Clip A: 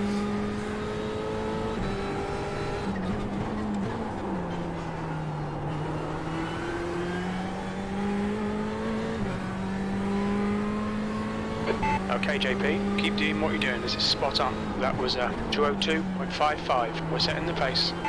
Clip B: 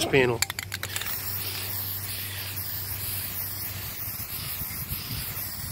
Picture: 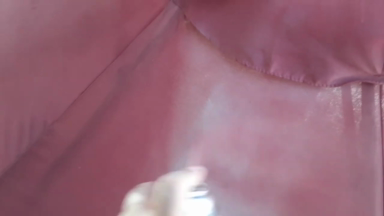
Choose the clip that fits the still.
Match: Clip B